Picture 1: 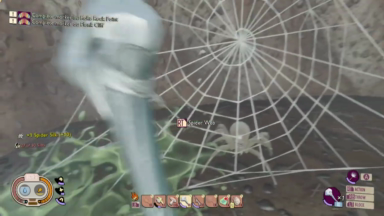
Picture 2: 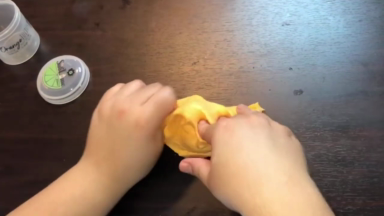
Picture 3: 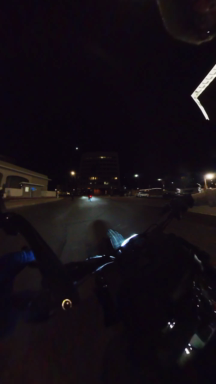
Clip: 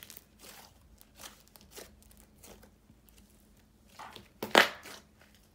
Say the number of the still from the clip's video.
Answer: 2